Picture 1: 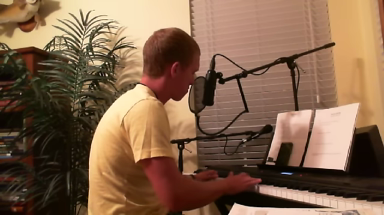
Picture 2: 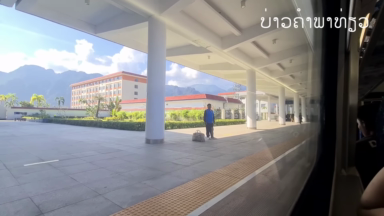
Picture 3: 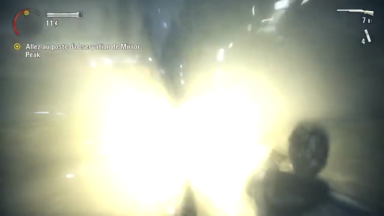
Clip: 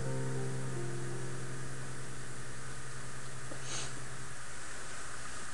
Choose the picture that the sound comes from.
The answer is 1